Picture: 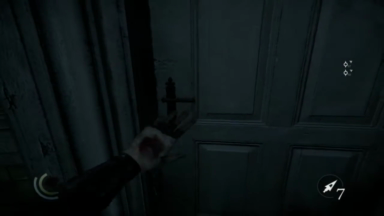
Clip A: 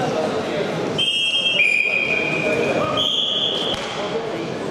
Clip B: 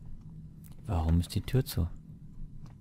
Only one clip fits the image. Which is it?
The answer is B